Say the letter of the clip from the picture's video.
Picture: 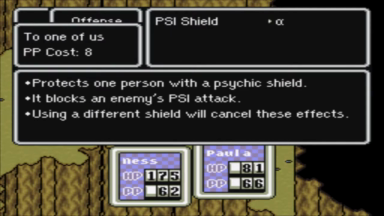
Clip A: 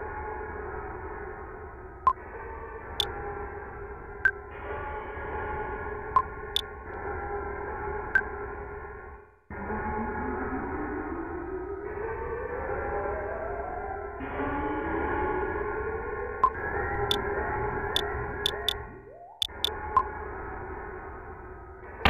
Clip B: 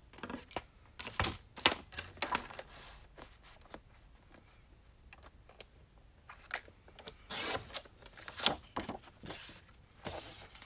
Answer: A